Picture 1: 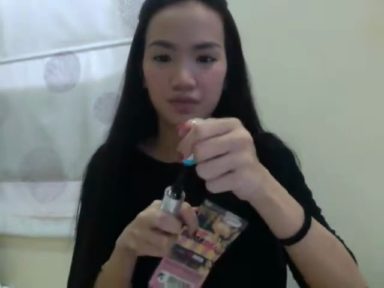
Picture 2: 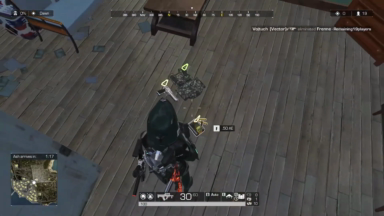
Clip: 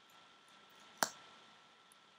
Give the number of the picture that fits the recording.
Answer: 1